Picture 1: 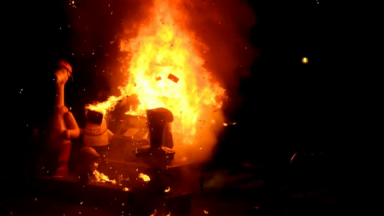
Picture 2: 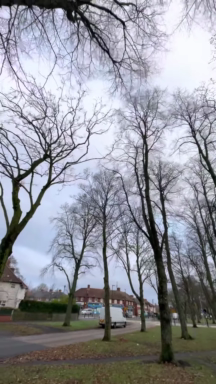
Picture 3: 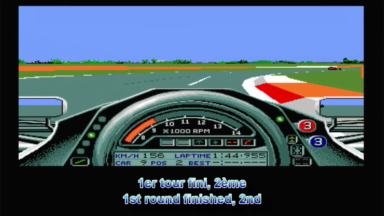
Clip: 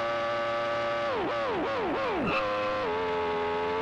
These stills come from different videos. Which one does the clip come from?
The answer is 3